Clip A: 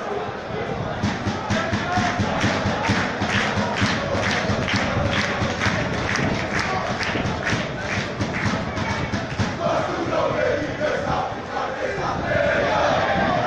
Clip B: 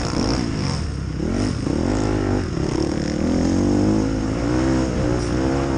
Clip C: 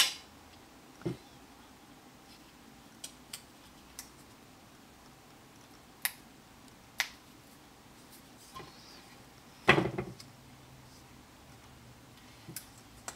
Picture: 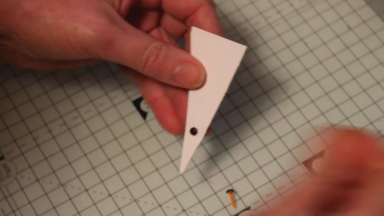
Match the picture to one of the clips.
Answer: C